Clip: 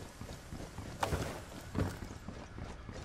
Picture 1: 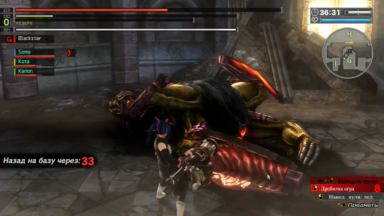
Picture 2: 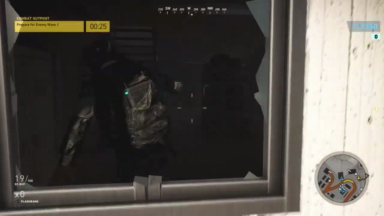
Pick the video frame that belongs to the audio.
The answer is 2